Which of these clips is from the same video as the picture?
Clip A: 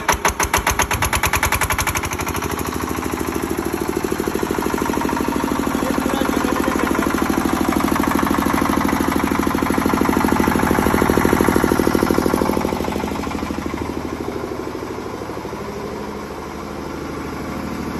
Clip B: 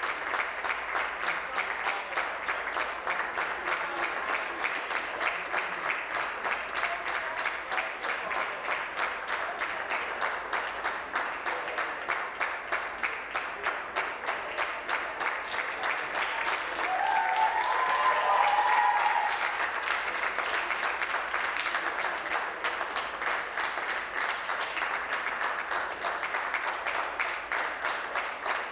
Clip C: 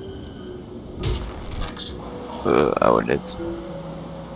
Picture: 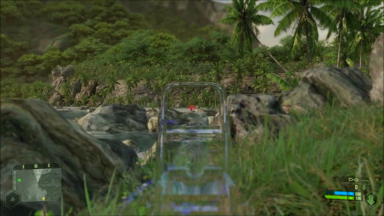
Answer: C